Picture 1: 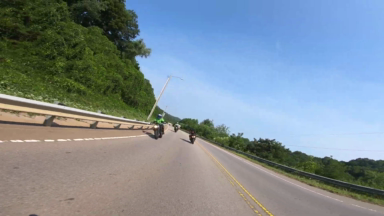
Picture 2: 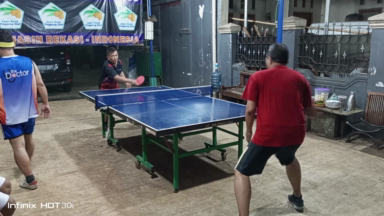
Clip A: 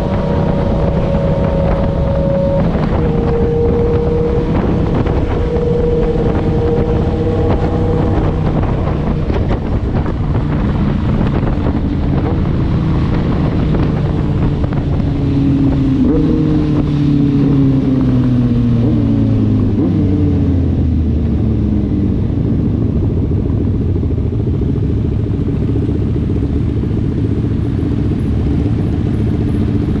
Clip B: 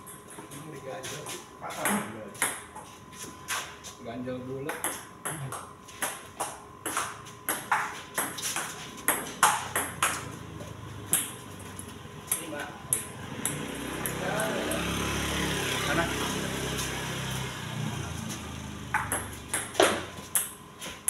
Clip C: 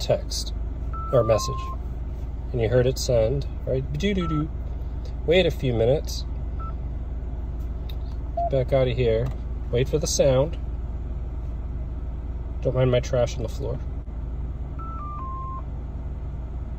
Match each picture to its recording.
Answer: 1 A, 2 B